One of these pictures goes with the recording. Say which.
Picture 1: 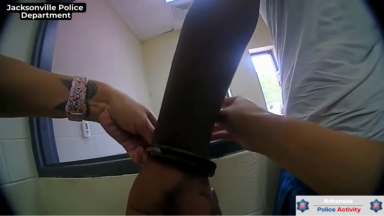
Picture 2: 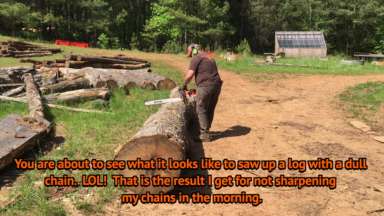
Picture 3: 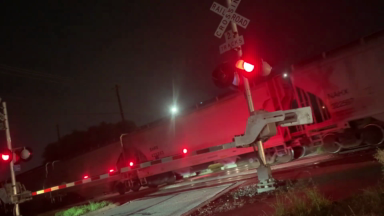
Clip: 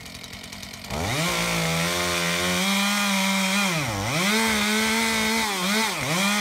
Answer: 2